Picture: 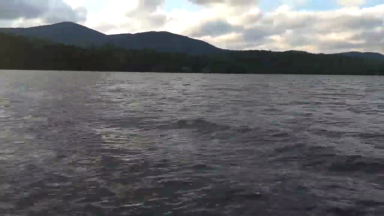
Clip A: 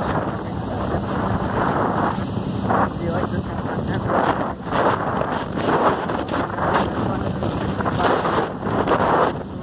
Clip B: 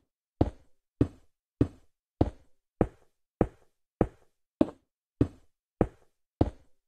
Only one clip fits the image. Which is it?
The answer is A